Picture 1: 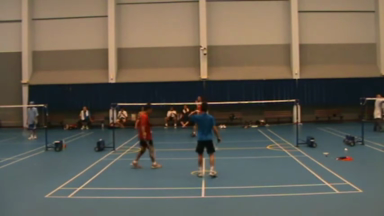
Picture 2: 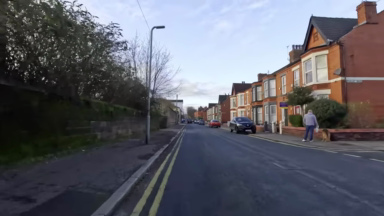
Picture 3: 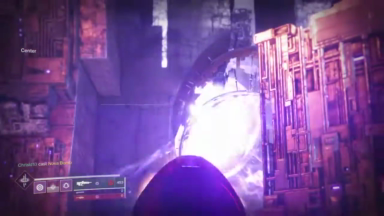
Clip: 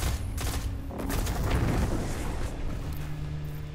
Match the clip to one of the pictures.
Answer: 3